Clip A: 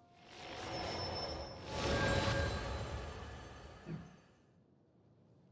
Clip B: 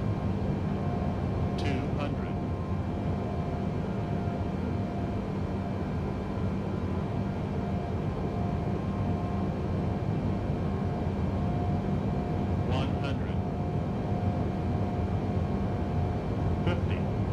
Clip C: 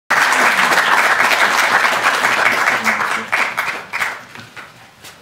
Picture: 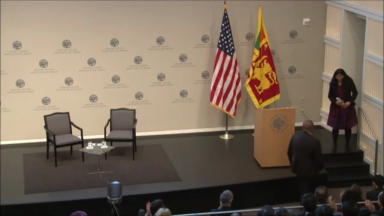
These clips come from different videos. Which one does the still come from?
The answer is C